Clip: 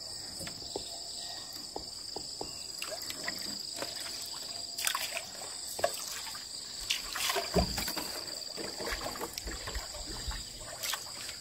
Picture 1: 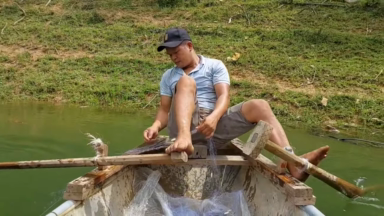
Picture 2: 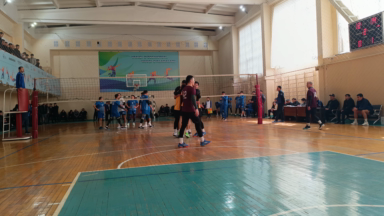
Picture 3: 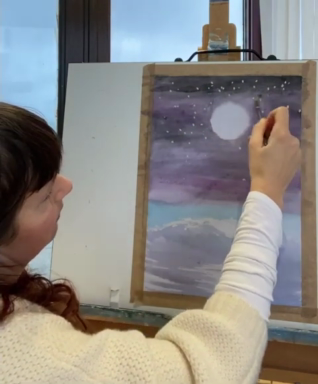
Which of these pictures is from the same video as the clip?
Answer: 1